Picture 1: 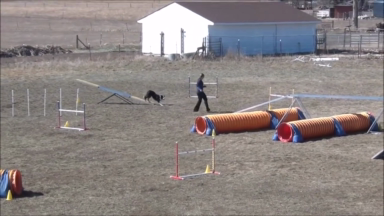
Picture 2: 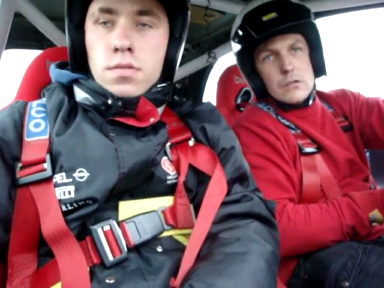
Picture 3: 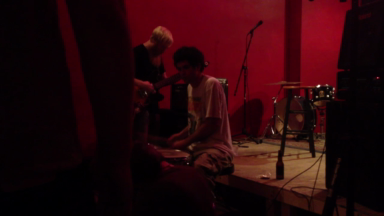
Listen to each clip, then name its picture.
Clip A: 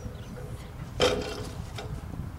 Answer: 1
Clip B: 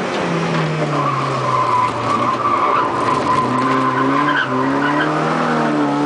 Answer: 2